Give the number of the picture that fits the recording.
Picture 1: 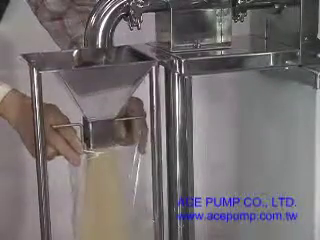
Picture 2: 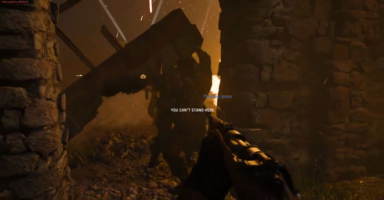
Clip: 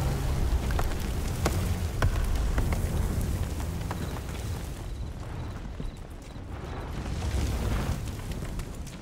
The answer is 2